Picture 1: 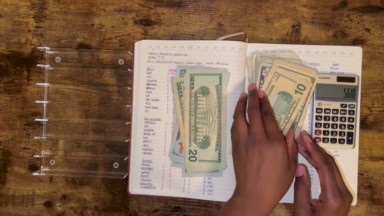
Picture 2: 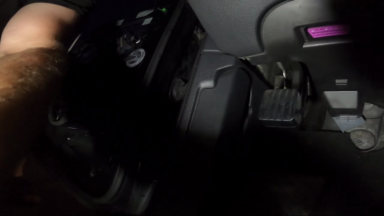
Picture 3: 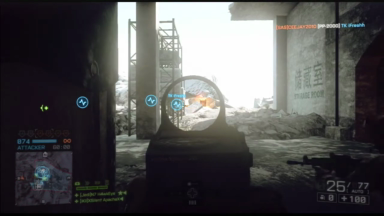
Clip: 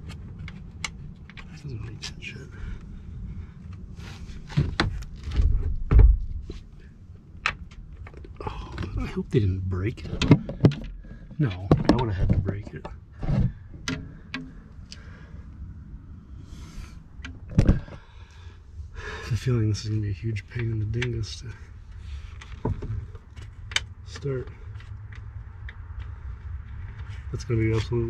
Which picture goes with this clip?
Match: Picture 2